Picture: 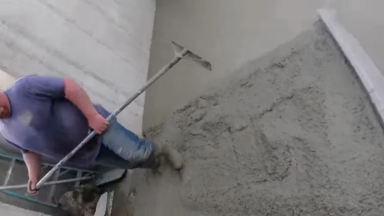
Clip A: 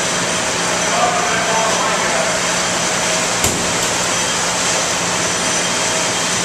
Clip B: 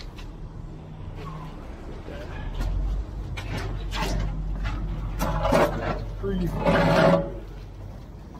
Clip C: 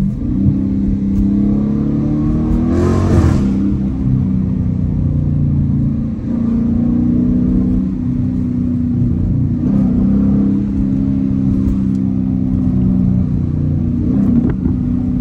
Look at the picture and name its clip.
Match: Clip B